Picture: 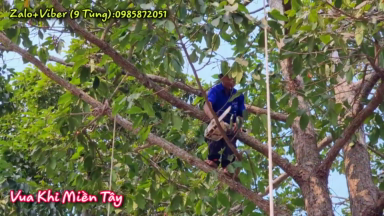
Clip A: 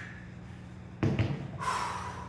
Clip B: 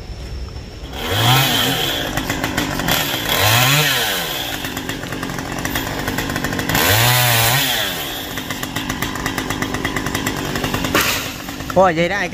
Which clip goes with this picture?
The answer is B